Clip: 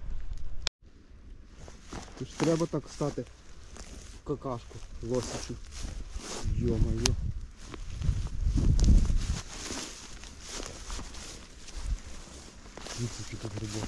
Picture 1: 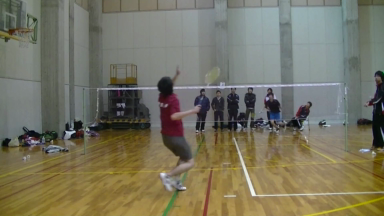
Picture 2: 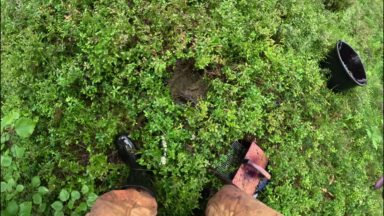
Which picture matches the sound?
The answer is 2